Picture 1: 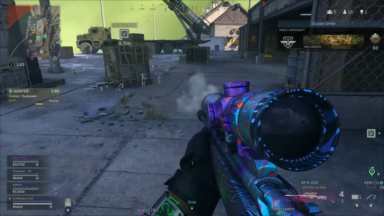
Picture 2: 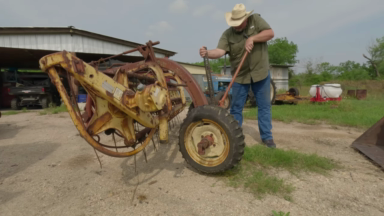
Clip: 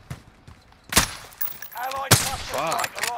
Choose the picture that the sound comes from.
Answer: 1